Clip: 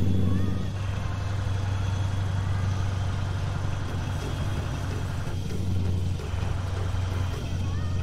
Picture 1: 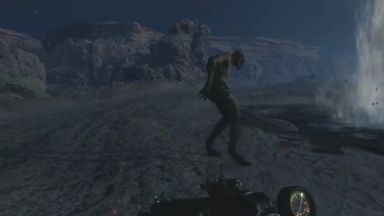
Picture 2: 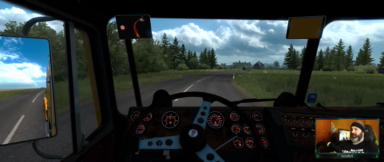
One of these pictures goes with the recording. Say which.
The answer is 2